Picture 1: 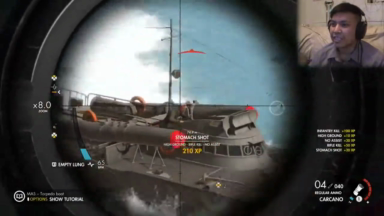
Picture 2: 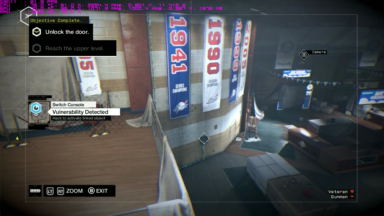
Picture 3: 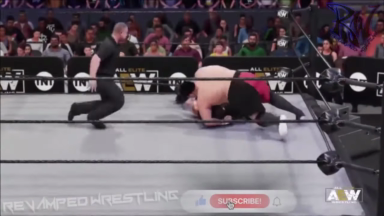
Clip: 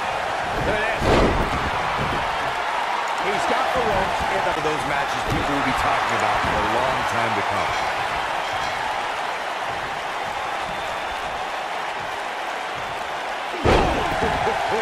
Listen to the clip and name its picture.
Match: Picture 3